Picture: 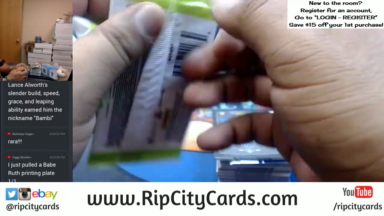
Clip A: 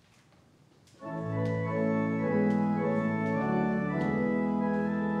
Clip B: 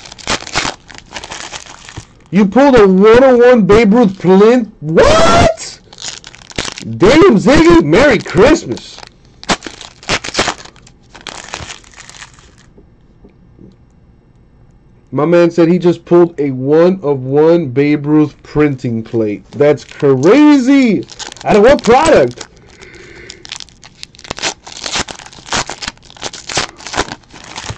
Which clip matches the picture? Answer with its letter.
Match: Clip B